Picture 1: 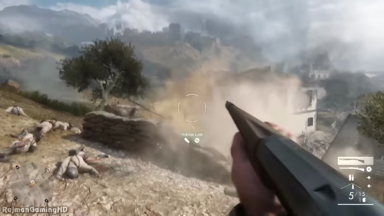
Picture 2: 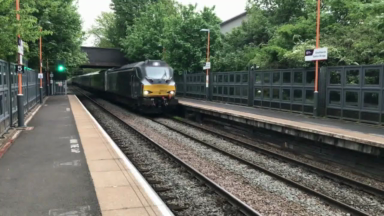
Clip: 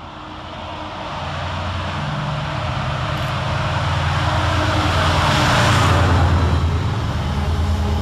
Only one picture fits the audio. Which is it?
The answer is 2